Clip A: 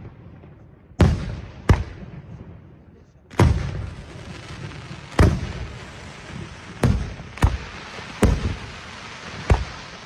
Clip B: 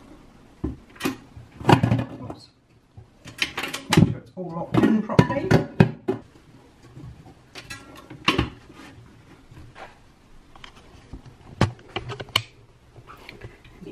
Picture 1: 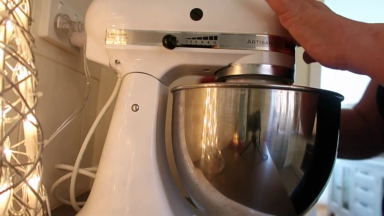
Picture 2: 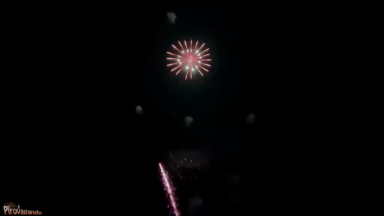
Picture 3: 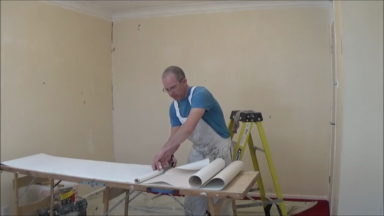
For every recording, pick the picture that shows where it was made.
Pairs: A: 2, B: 1